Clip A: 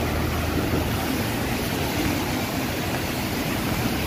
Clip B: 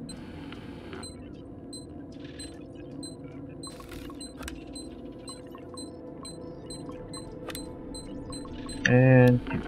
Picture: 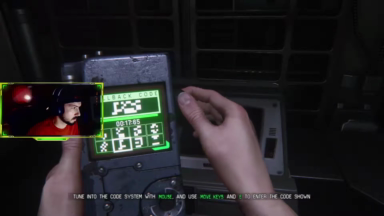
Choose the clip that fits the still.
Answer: B